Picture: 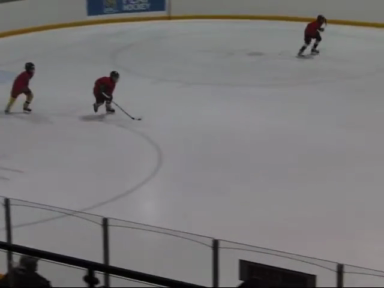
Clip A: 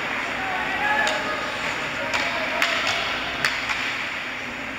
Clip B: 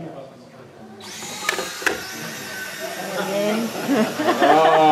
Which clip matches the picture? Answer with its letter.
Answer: A